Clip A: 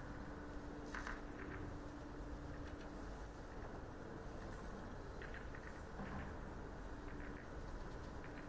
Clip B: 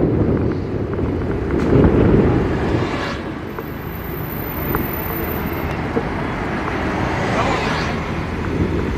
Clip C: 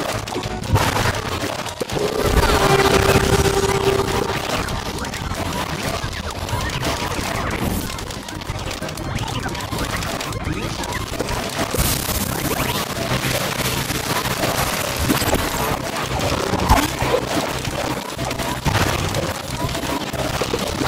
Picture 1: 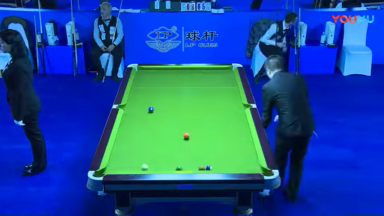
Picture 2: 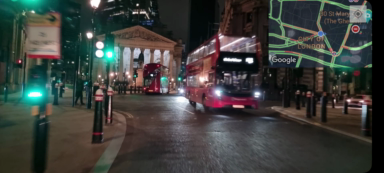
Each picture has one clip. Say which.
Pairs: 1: A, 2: B